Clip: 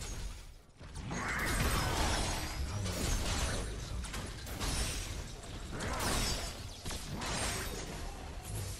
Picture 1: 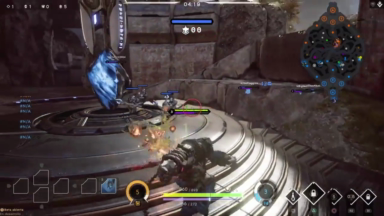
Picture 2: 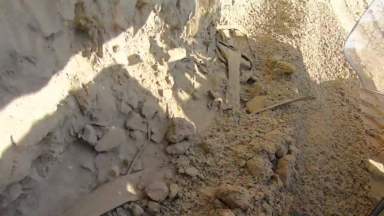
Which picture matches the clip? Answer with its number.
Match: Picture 1